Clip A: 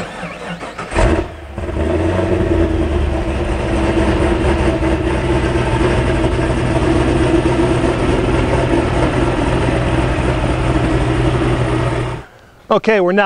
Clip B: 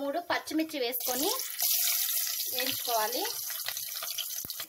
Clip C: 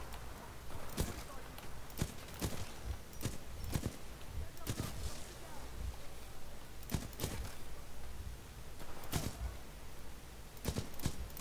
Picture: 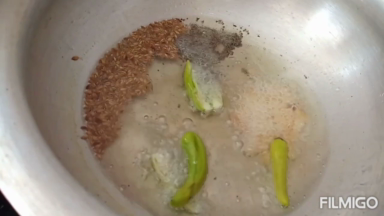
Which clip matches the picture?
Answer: B